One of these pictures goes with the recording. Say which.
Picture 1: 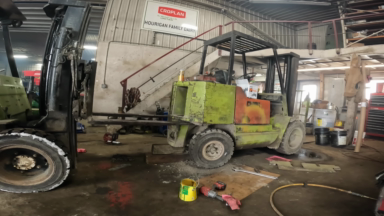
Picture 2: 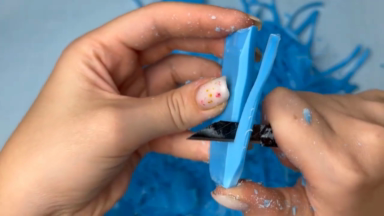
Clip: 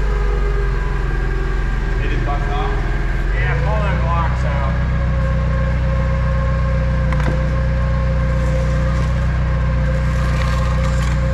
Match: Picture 1